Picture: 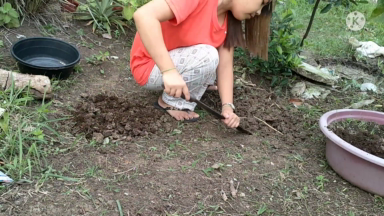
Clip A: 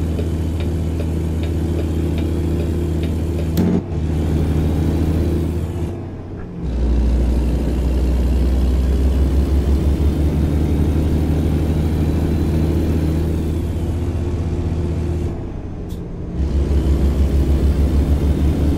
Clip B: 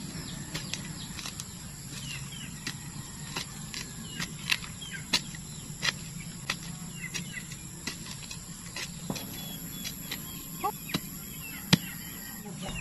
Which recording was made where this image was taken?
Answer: B